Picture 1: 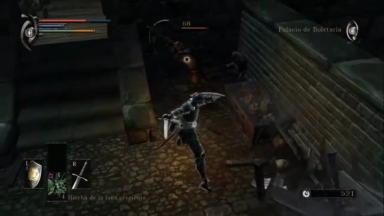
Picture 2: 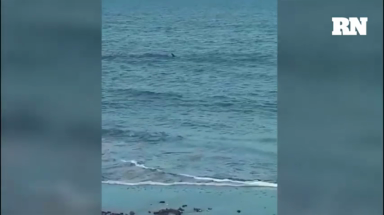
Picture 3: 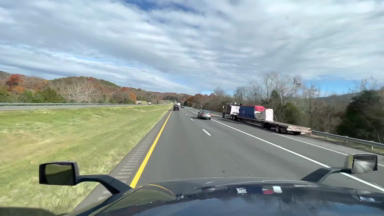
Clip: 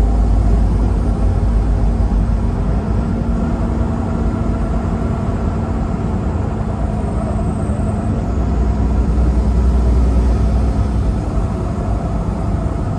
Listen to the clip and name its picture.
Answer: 3